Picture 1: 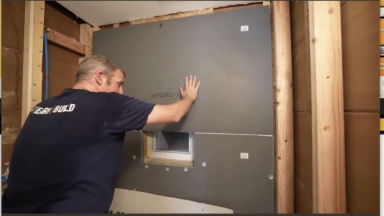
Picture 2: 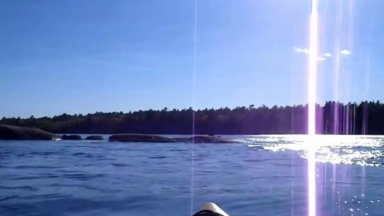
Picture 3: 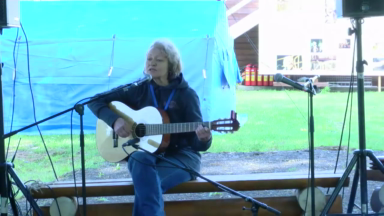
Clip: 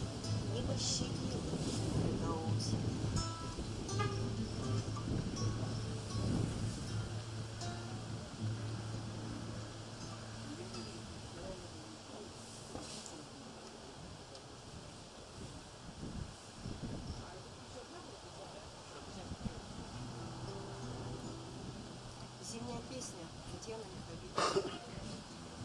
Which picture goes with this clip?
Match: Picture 3